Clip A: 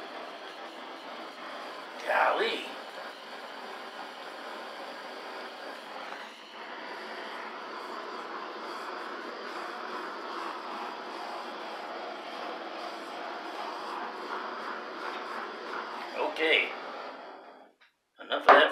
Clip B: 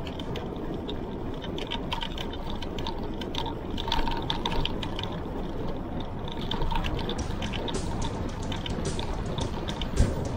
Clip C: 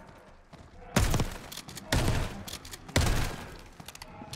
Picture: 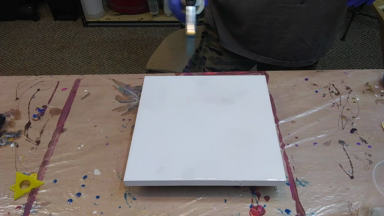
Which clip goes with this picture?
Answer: A